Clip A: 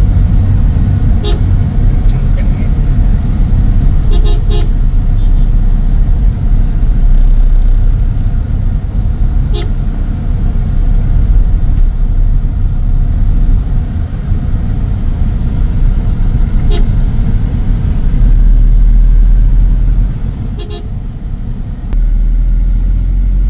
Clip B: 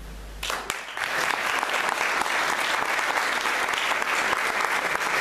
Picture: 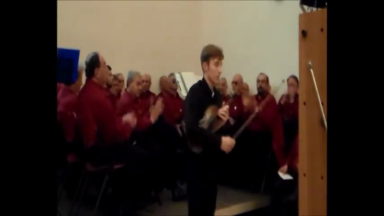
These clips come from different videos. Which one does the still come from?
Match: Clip B